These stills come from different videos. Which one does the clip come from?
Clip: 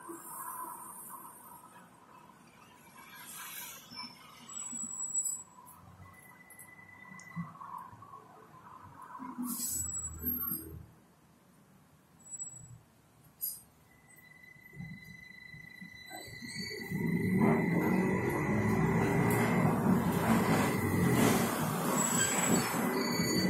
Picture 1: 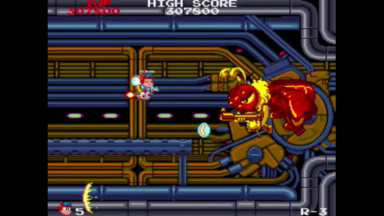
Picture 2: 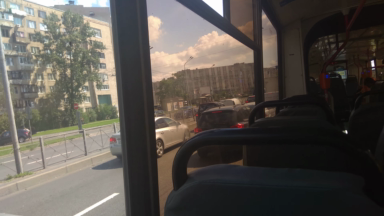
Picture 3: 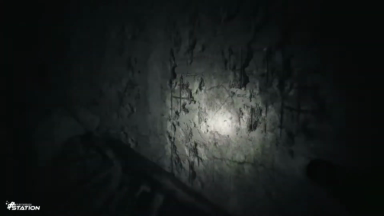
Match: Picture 2